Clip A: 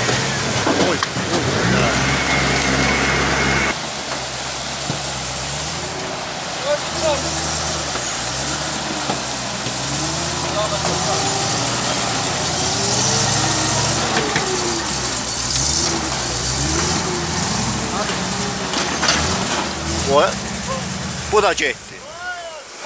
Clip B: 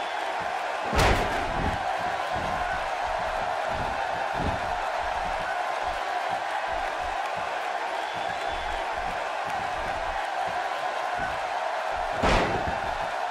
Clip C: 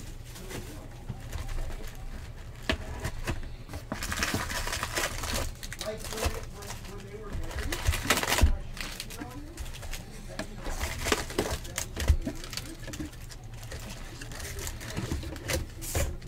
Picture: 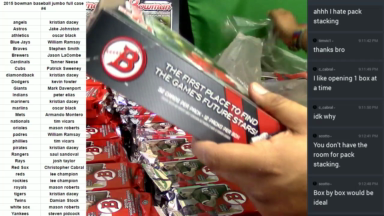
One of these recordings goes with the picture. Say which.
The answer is C